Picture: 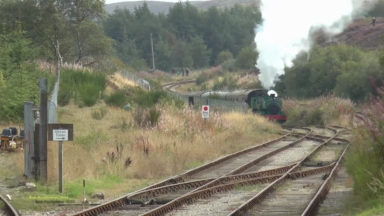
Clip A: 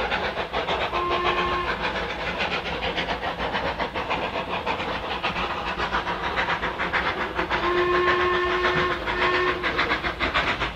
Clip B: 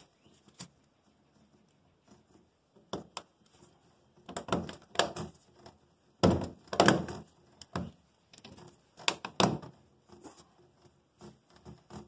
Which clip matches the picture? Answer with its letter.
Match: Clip A